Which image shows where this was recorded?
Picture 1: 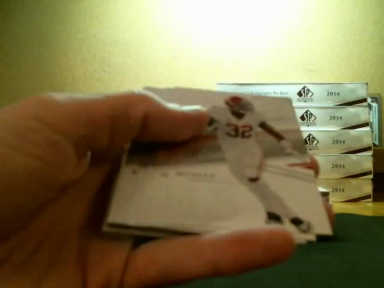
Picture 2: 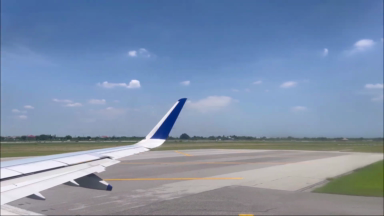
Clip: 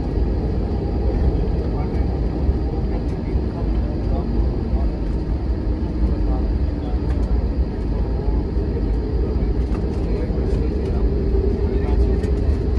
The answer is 2